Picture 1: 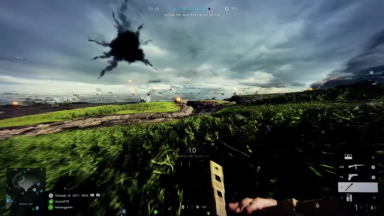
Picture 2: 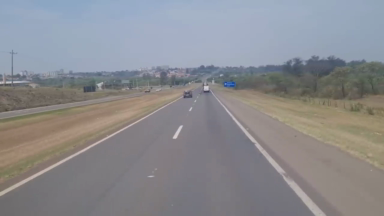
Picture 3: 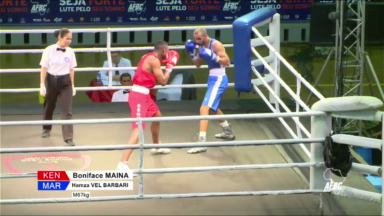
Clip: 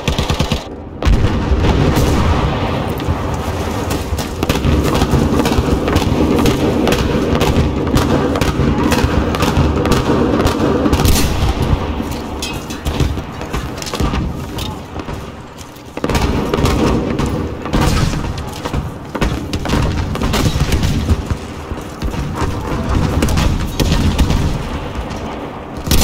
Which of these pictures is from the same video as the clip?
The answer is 1